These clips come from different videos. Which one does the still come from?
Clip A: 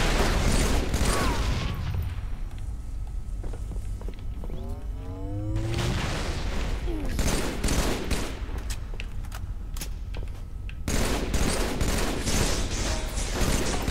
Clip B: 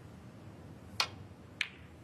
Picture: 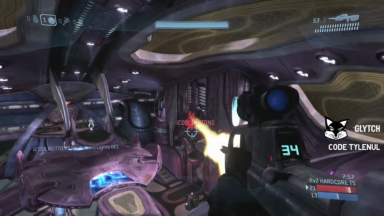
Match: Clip A